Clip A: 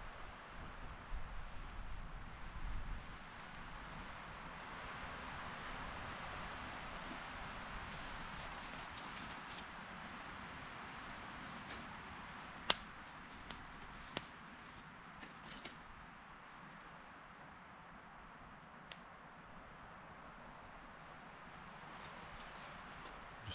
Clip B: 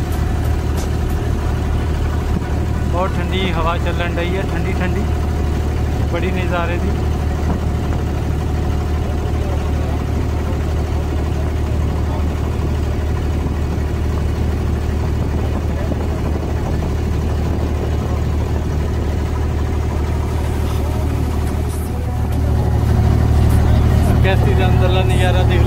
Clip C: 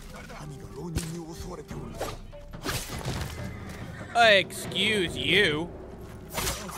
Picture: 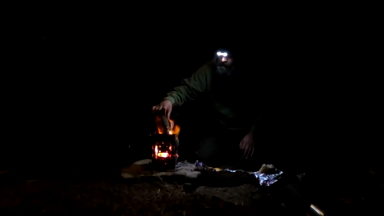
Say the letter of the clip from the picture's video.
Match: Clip A